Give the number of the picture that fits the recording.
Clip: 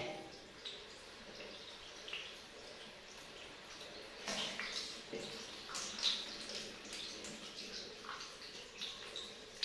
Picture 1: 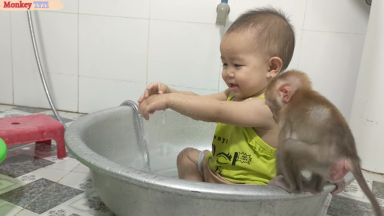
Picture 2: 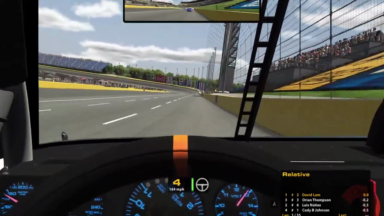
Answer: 1